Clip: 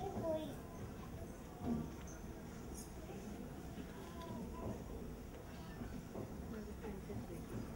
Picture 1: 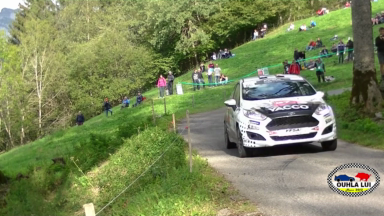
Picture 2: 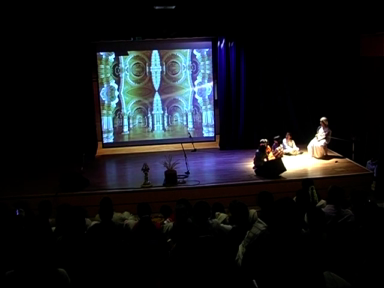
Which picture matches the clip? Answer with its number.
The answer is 2